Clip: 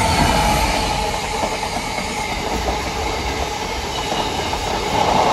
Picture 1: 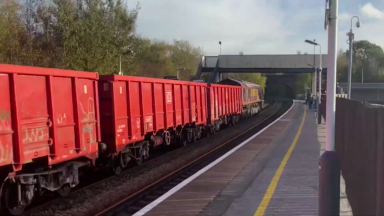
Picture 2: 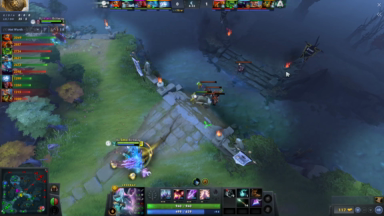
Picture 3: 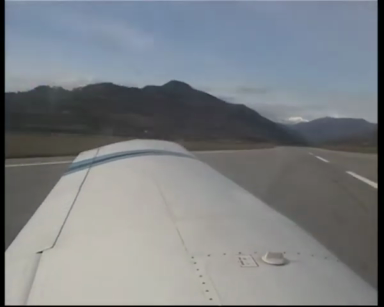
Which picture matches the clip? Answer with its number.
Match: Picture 1